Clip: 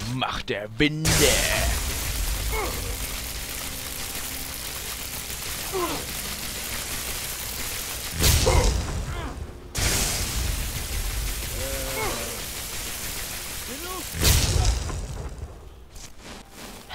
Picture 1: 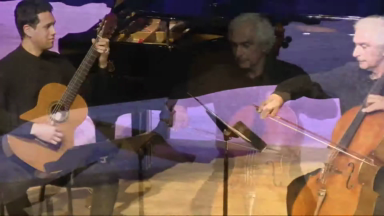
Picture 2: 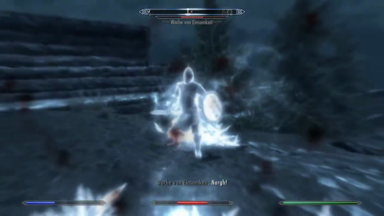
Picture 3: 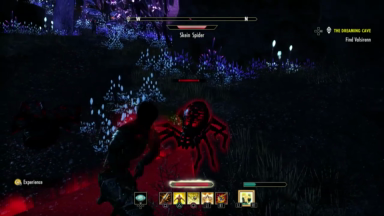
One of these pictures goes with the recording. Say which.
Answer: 2